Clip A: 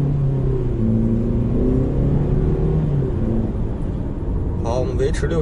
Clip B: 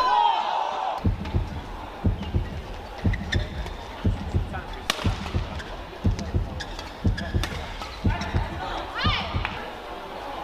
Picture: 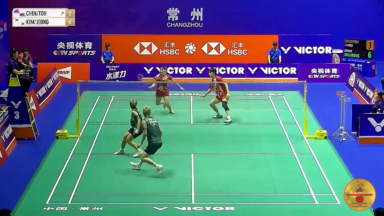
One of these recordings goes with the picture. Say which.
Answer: B